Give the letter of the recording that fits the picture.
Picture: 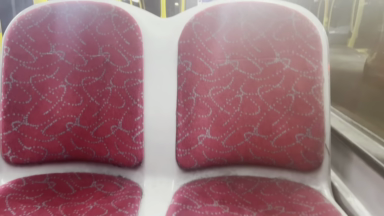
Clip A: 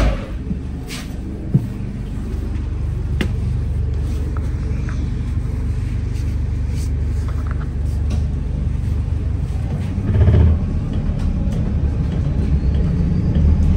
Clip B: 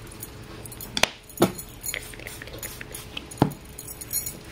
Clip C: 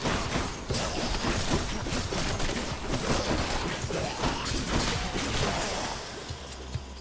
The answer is A